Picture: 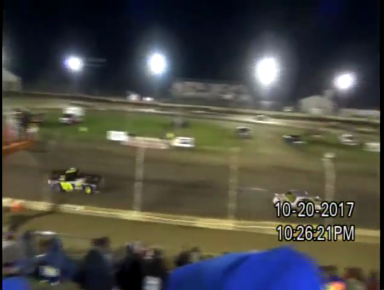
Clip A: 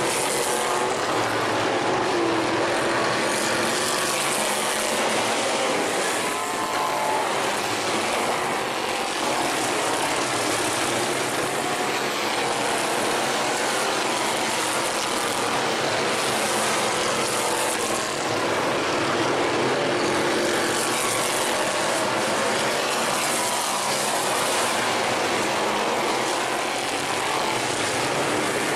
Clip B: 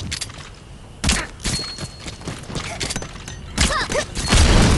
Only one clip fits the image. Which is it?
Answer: A